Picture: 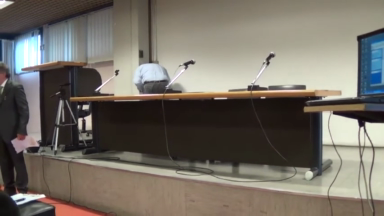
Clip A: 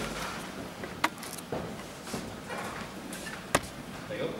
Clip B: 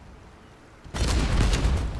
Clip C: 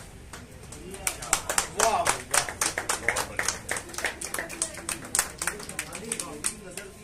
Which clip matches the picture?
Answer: A